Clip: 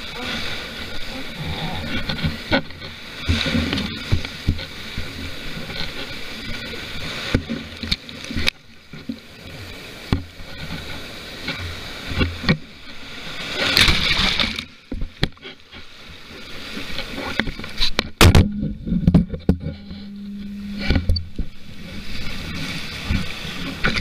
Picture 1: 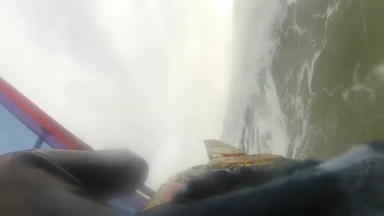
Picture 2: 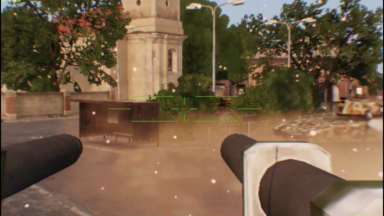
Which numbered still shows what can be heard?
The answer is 1